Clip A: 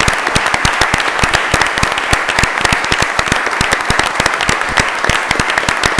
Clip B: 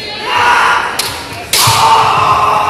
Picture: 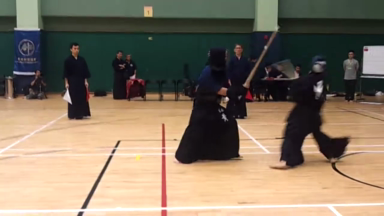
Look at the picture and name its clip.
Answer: B